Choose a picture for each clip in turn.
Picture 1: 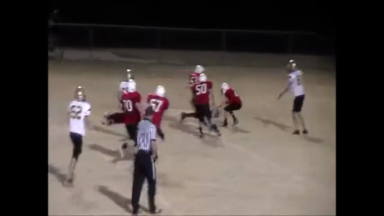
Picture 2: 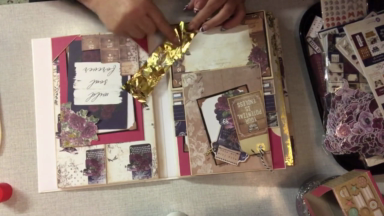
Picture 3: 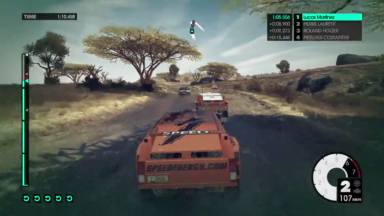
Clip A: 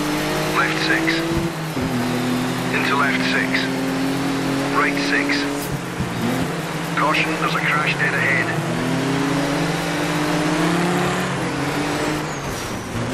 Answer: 3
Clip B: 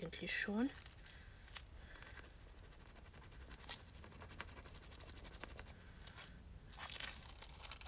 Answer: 2